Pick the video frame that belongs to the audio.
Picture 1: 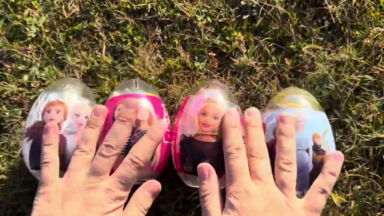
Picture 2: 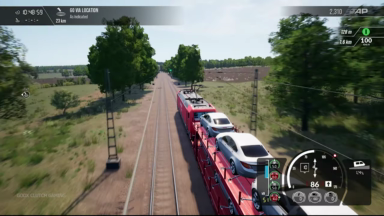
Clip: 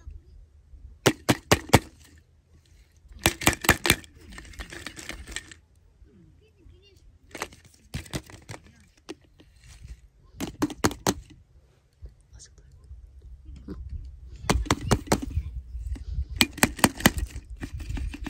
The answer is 1